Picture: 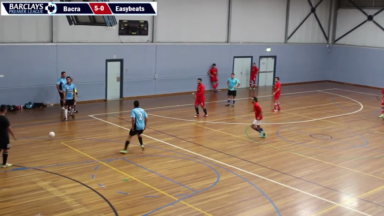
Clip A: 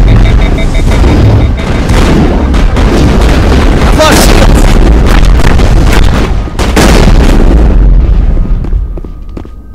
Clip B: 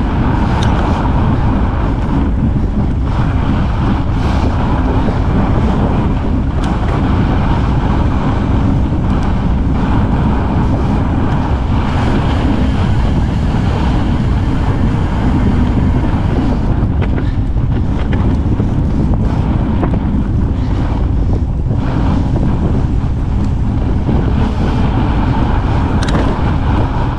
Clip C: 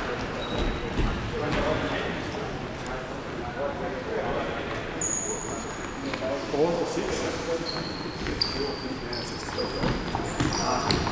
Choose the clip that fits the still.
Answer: C